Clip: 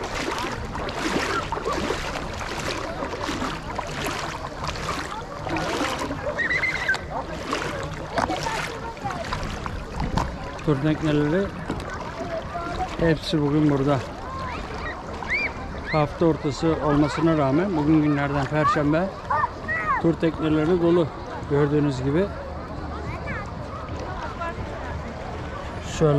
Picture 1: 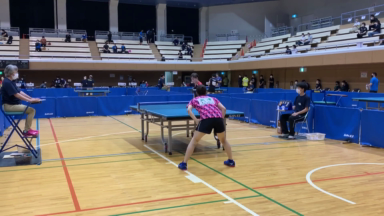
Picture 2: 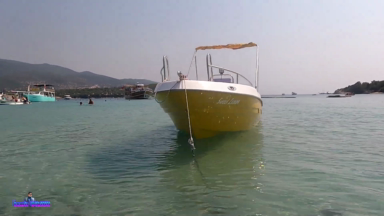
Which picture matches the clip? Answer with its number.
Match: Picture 2